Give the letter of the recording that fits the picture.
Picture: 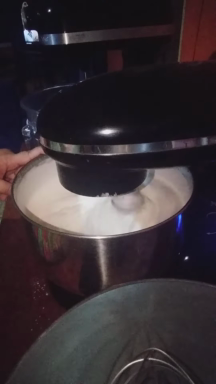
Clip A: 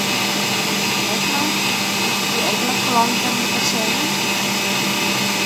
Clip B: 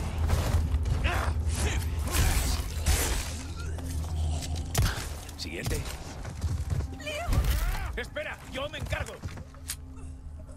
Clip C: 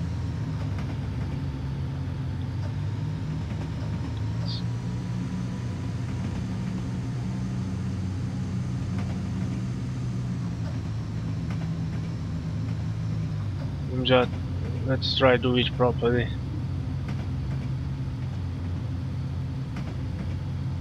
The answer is A